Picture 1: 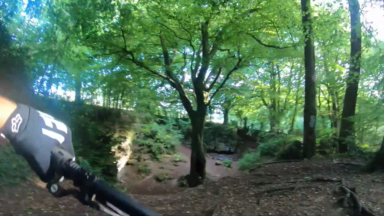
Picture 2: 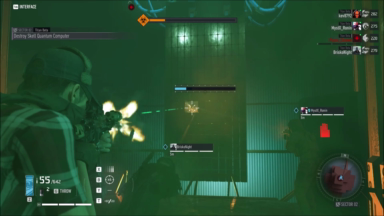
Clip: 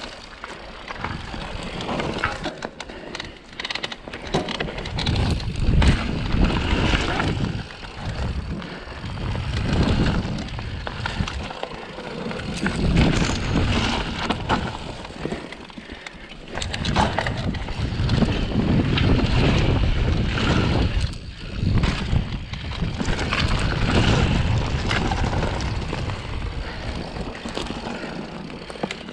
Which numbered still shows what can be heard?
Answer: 1